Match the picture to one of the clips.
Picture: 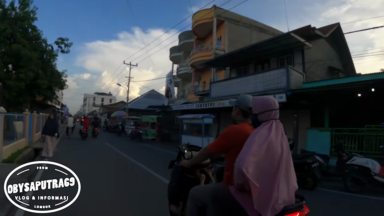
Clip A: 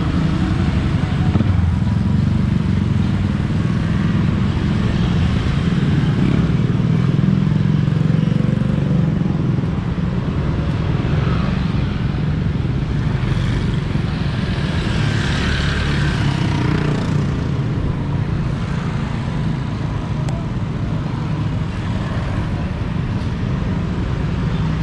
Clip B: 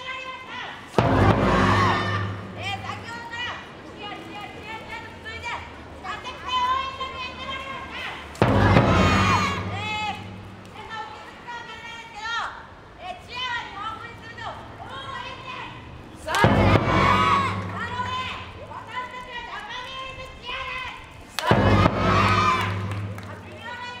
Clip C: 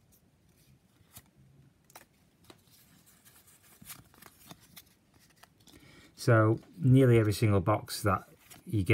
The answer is A